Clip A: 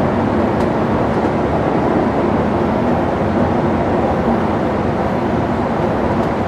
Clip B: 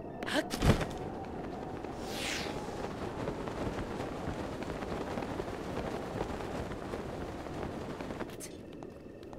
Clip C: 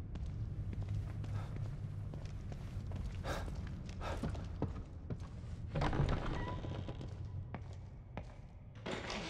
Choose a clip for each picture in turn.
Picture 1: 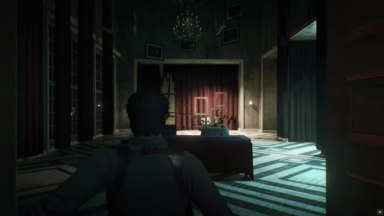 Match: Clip C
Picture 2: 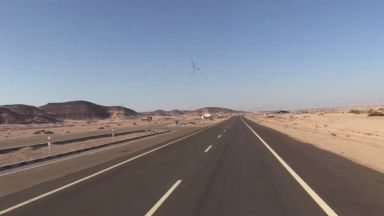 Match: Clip A